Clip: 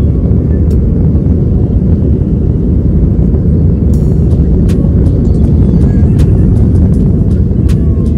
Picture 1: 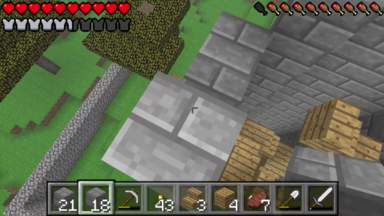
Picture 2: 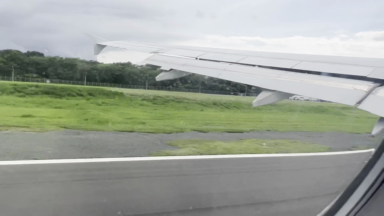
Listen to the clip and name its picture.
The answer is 2